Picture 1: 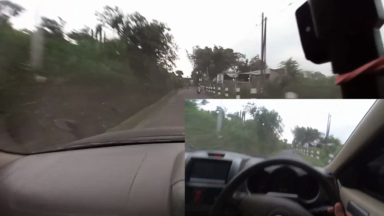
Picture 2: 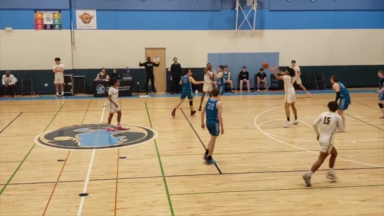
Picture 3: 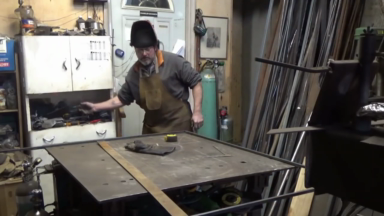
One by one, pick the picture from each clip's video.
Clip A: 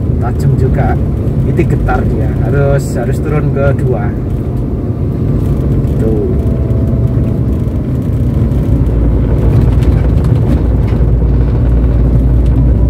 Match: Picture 1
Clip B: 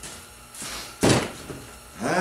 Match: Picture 3